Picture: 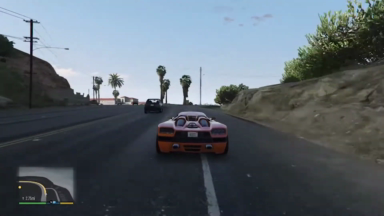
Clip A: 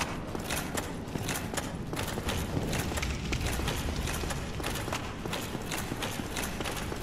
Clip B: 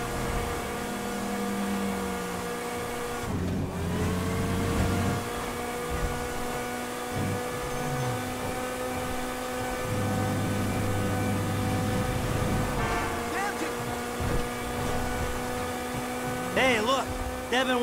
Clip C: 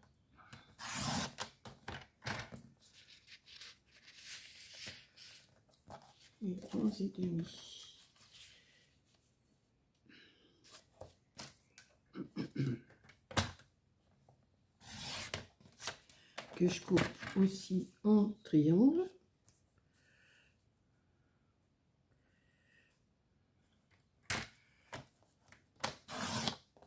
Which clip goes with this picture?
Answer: B